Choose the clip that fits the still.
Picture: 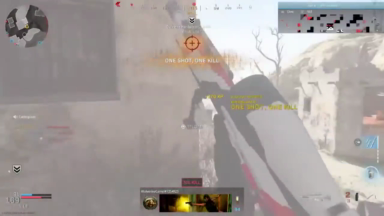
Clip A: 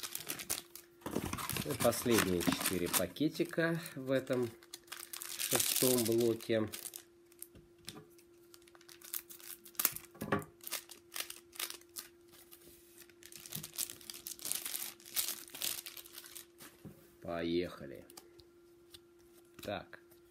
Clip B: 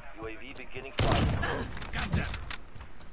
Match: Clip B